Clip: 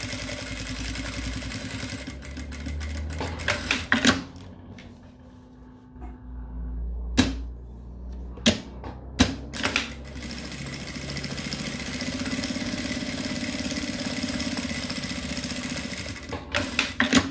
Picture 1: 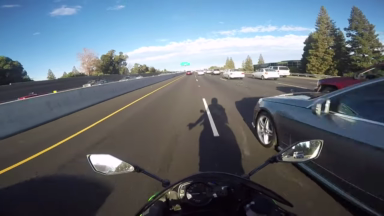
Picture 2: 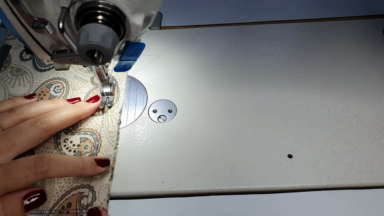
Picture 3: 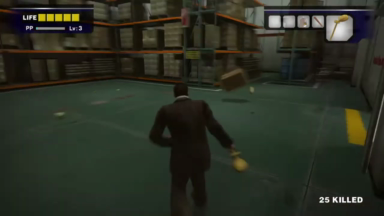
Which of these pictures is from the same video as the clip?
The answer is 2